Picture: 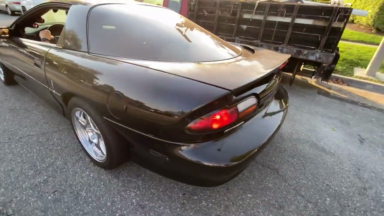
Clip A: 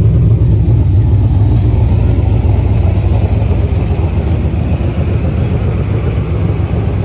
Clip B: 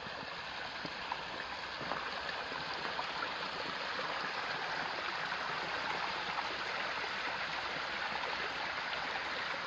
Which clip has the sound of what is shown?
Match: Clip A